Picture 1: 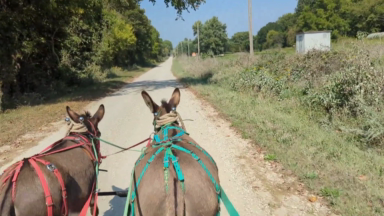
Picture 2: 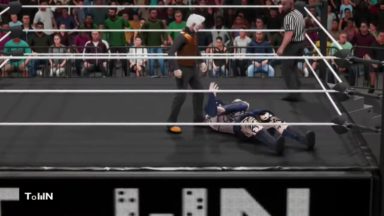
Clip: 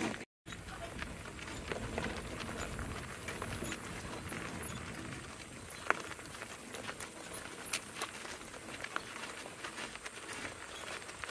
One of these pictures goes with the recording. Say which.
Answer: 1